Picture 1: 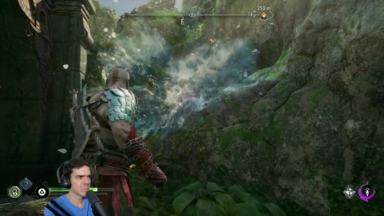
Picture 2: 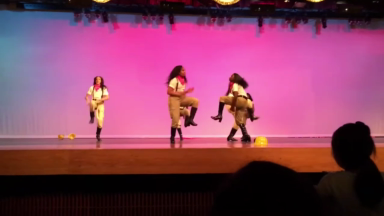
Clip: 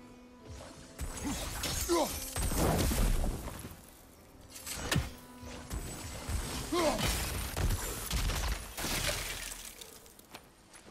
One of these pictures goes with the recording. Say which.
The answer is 1